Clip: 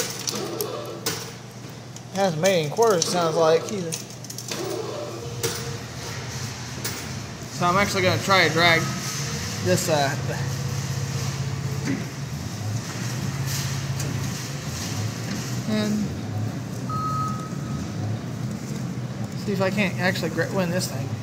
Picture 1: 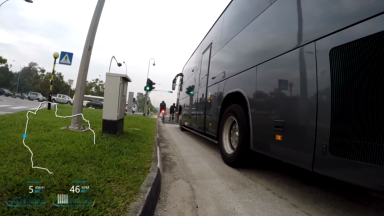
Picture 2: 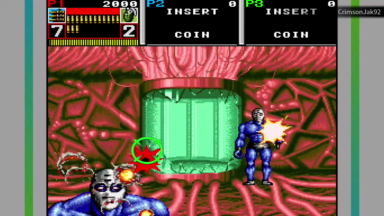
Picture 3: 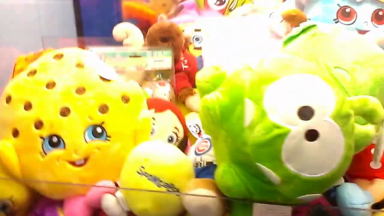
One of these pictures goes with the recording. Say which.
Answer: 3